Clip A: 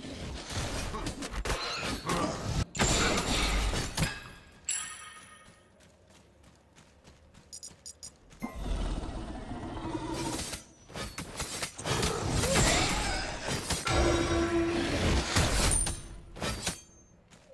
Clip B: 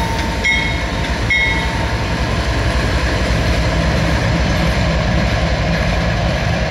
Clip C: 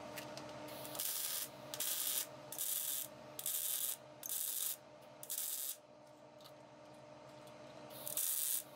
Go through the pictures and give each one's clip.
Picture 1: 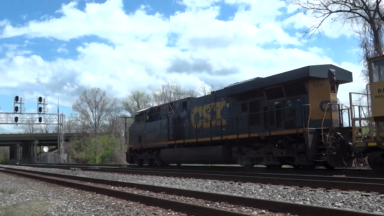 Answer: B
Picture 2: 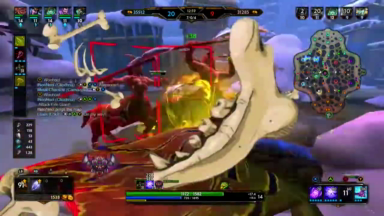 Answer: A